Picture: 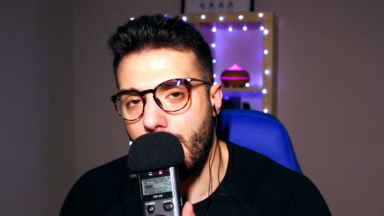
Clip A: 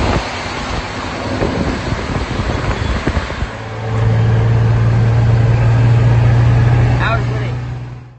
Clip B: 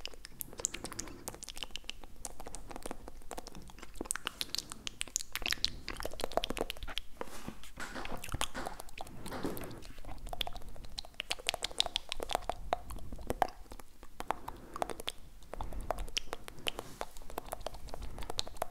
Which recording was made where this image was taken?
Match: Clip B